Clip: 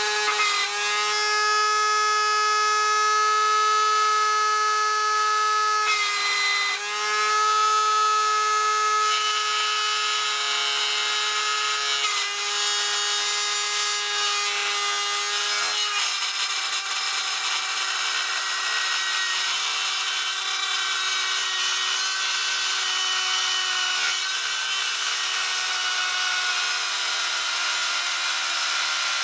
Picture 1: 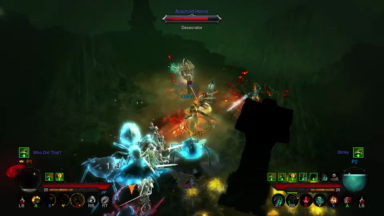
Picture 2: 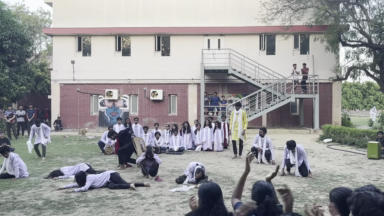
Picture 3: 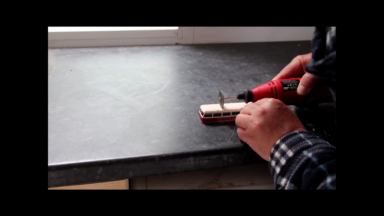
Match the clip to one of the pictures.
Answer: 3